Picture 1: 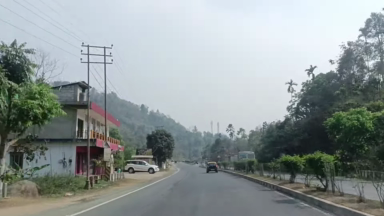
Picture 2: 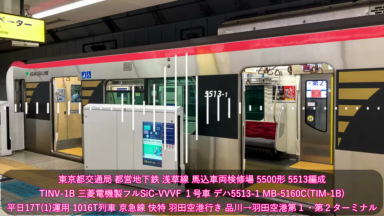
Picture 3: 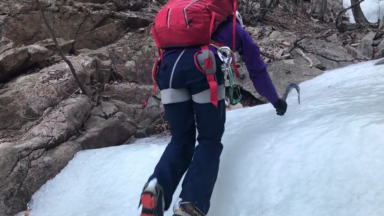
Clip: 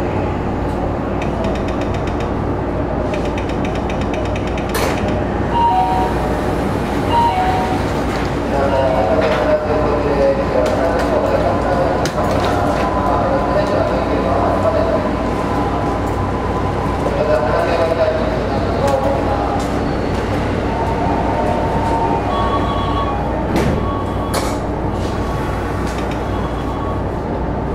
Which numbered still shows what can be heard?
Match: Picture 2